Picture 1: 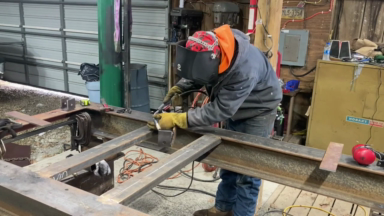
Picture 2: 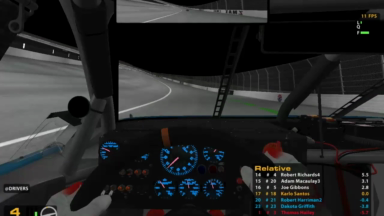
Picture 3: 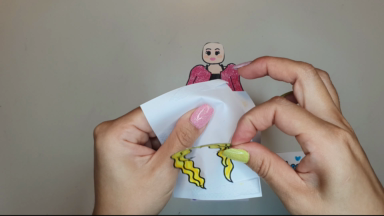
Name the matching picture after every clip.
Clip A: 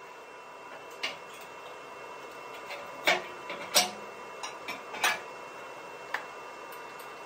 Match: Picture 1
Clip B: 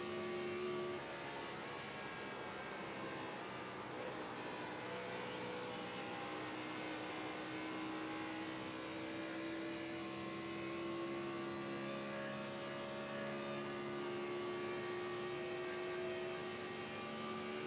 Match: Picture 2